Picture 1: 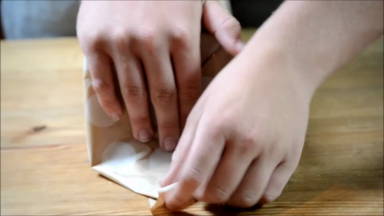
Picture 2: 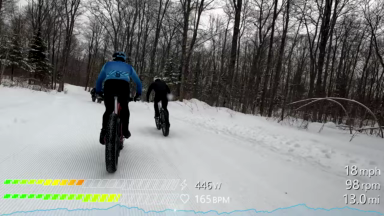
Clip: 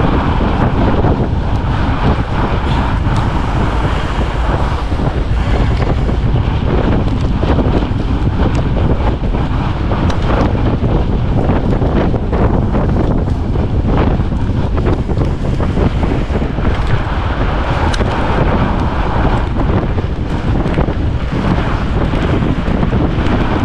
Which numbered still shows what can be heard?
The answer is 2